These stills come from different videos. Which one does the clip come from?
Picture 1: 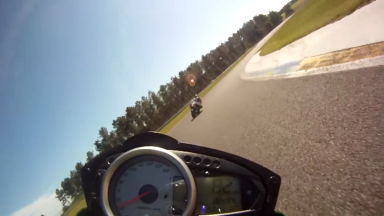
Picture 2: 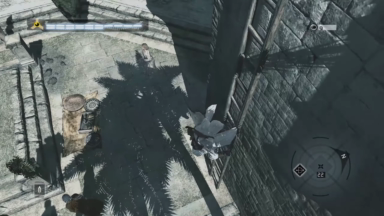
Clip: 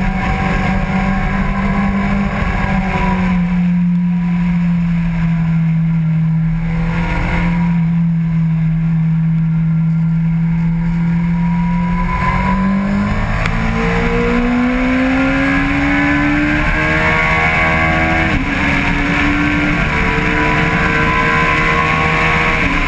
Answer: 1